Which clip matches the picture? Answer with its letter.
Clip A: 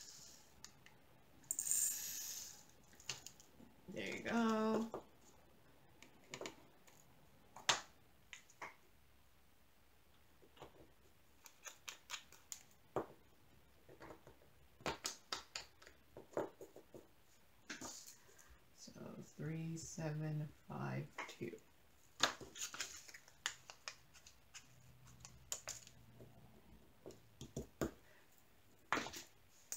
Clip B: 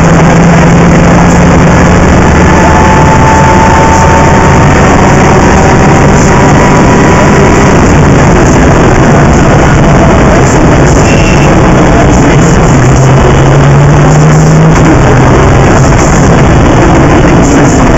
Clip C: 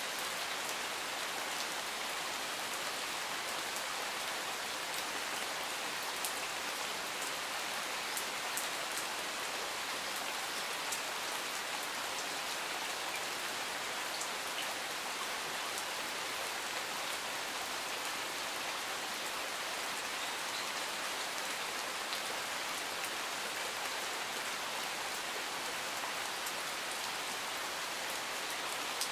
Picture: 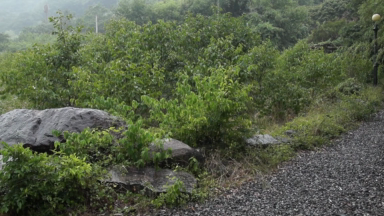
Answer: C